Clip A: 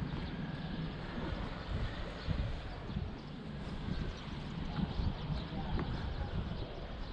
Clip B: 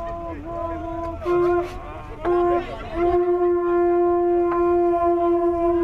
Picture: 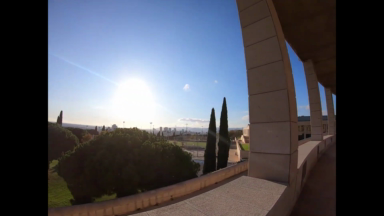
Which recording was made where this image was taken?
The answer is A